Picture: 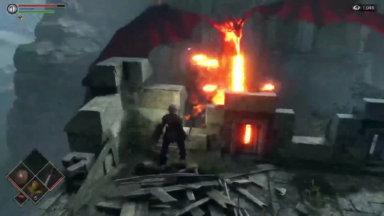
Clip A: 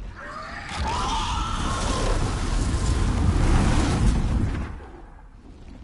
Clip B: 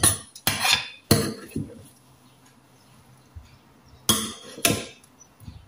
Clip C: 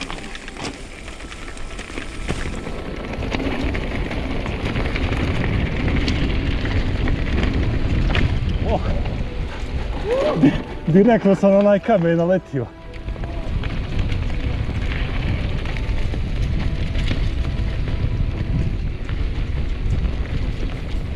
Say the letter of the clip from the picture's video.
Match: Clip A